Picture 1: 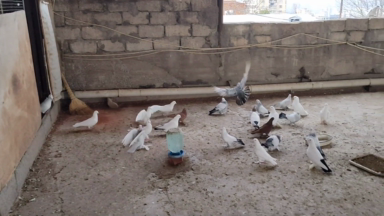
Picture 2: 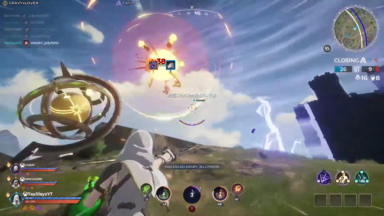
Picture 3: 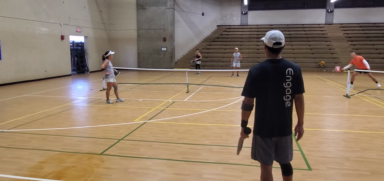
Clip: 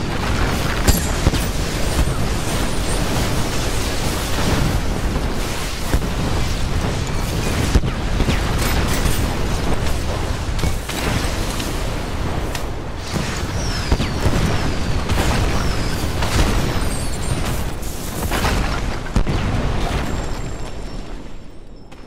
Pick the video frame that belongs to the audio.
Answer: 2